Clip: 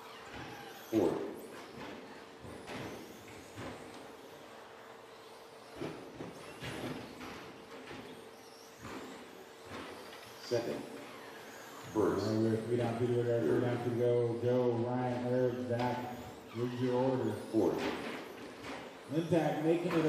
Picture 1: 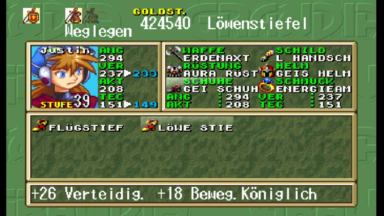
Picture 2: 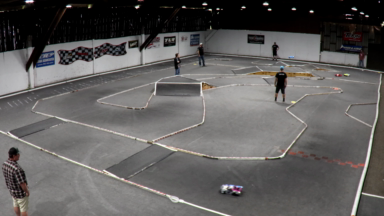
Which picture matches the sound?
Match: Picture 2